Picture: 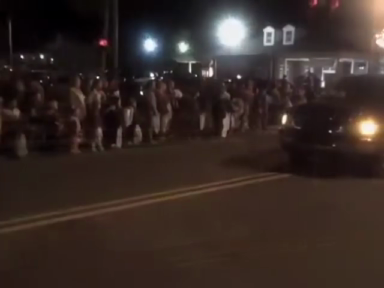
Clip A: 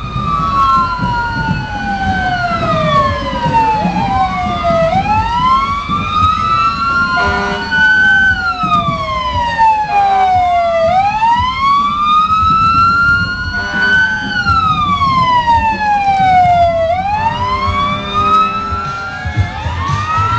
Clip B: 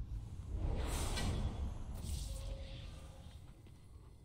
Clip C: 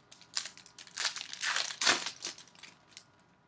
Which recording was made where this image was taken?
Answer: A